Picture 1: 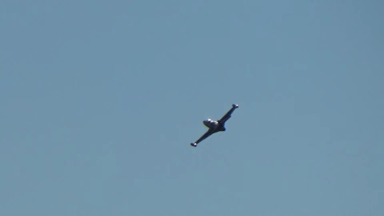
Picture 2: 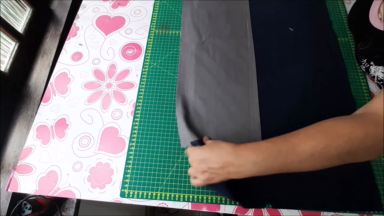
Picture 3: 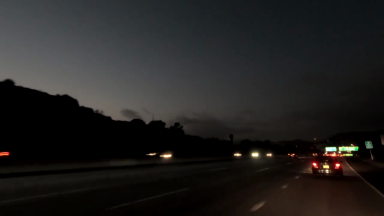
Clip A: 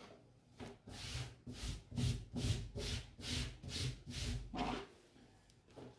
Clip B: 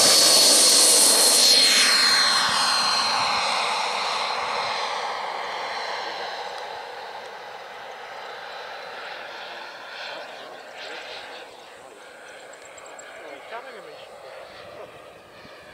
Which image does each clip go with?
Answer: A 2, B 1